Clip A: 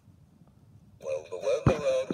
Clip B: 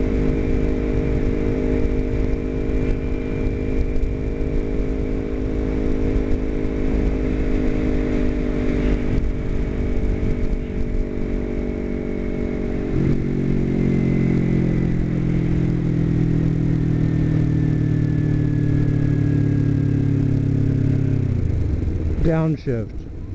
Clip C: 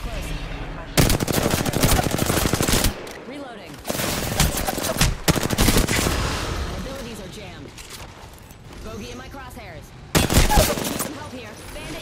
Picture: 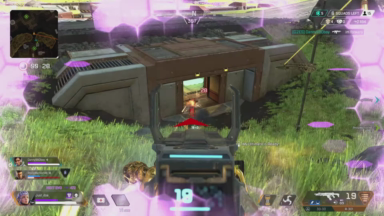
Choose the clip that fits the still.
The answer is C